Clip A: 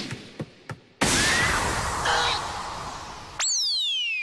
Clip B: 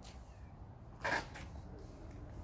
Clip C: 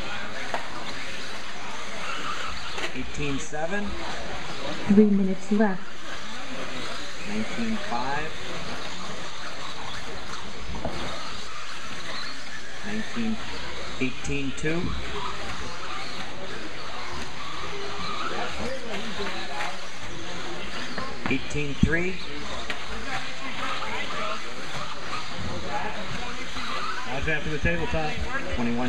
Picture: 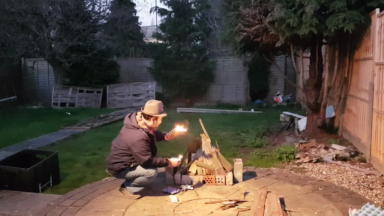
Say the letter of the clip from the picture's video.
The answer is B